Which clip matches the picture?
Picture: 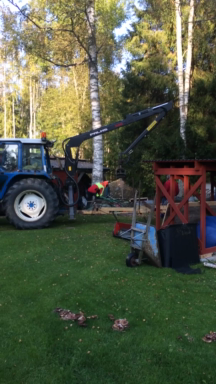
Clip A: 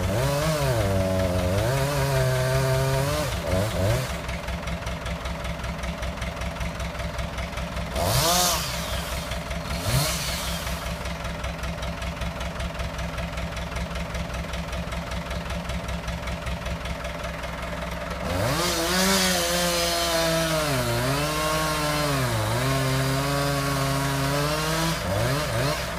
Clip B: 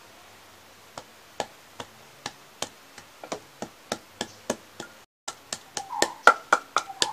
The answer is A